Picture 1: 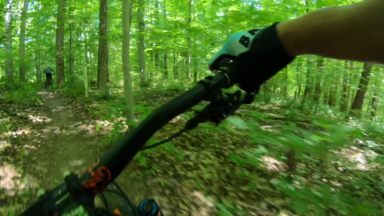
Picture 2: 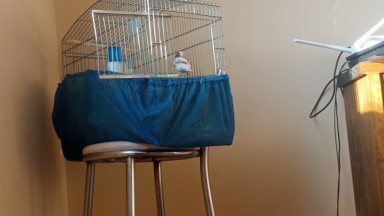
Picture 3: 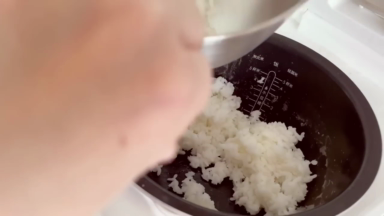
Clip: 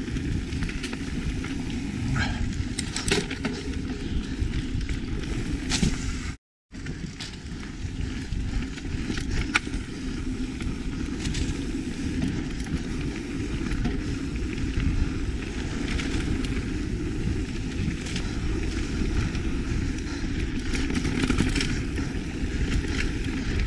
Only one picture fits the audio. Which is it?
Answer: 1